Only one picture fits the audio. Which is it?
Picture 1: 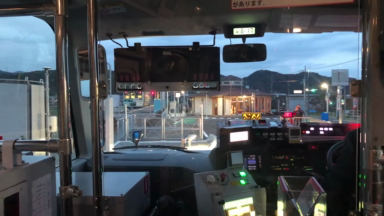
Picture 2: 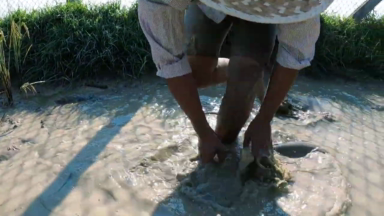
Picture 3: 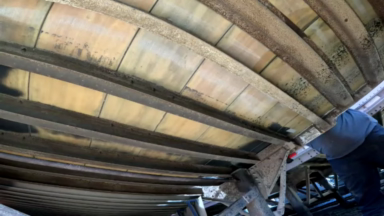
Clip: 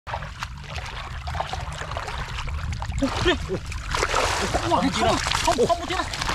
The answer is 2